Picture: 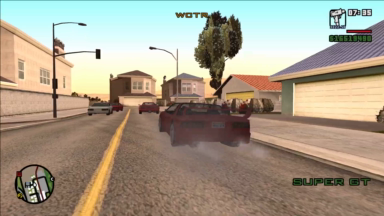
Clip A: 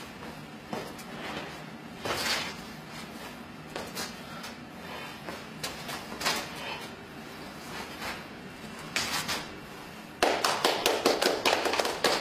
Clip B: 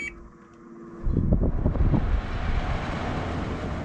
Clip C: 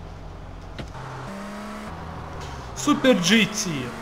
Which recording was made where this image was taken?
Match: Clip C